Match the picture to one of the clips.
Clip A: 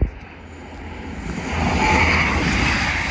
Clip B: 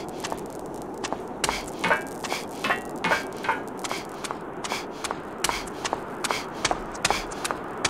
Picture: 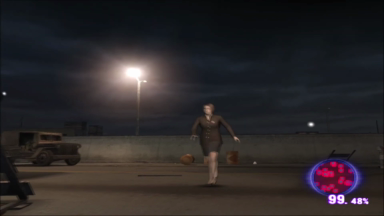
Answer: B